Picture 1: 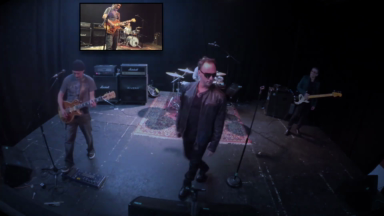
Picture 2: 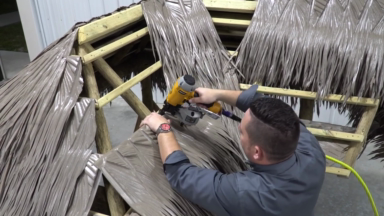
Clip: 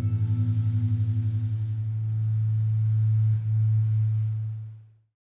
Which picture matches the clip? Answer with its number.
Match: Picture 1